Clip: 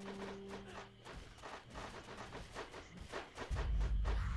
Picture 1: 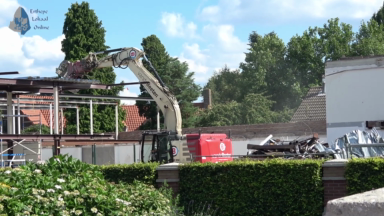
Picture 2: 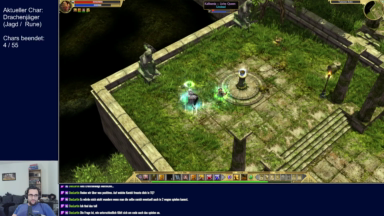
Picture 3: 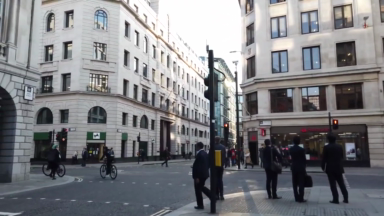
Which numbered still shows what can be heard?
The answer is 2